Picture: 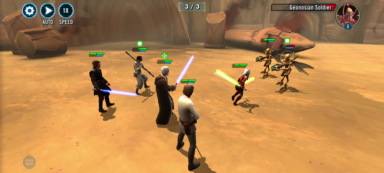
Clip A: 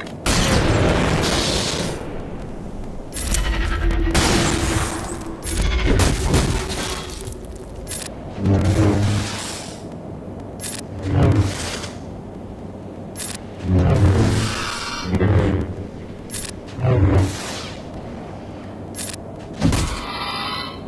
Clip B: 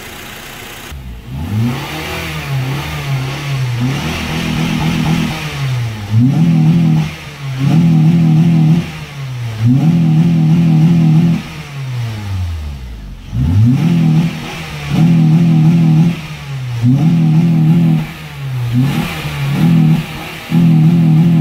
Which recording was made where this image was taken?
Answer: A